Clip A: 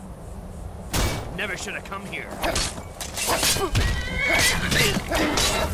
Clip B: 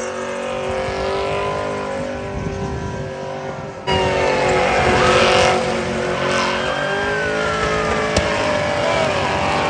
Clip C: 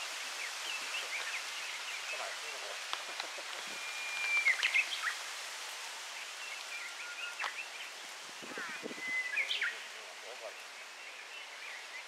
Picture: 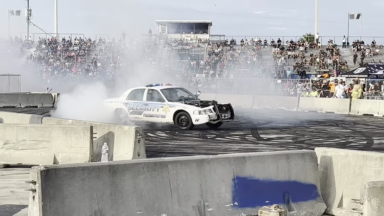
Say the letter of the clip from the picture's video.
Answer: B